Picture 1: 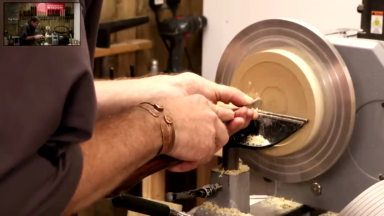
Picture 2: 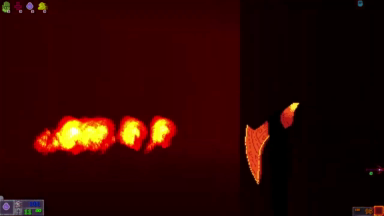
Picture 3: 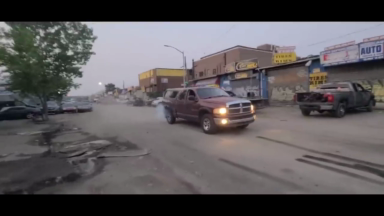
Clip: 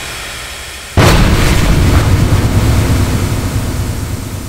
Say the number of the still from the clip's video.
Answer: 2